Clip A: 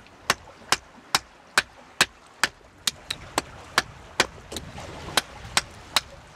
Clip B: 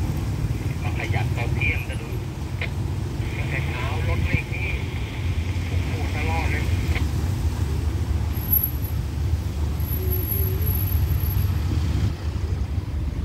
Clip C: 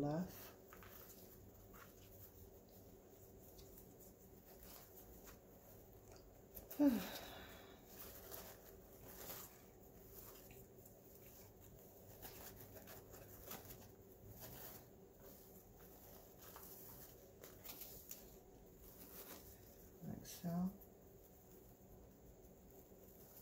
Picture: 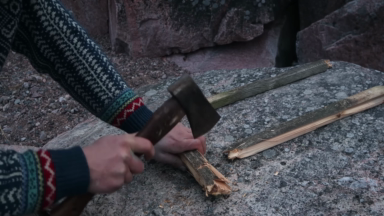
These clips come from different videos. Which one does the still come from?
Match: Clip A